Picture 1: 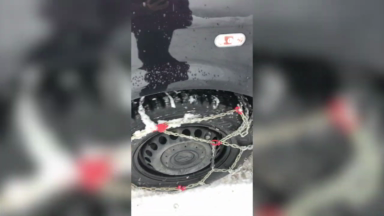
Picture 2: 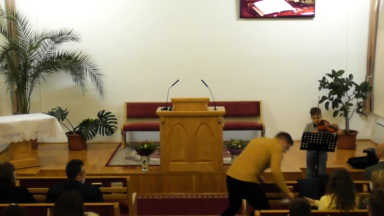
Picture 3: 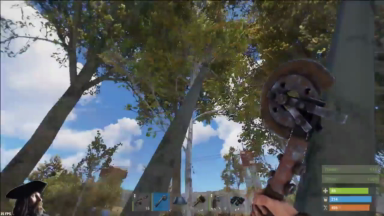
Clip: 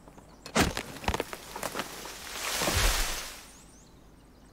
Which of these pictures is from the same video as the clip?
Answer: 3